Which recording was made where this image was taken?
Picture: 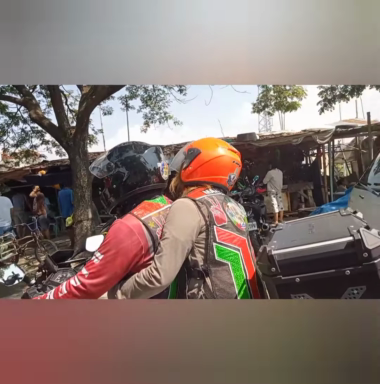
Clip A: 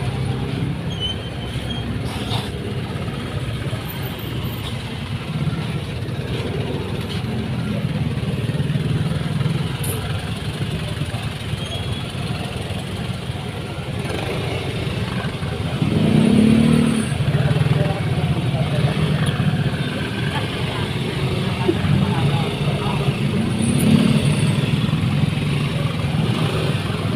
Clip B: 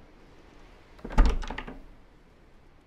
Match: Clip A